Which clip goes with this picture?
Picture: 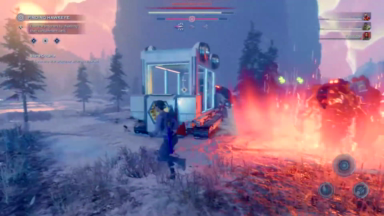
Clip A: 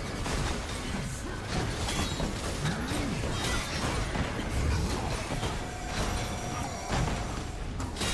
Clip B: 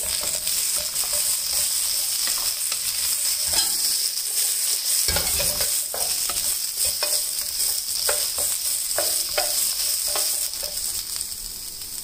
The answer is A